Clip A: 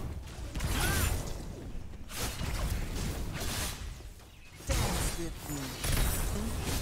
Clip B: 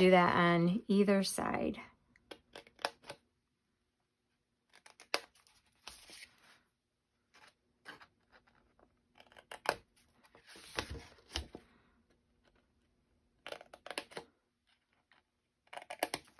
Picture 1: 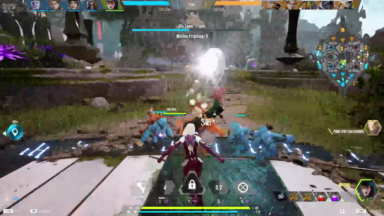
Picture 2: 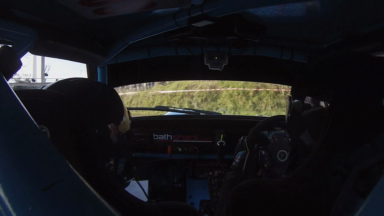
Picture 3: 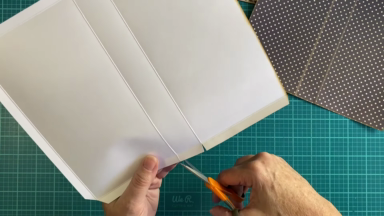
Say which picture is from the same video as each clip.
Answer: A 1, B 3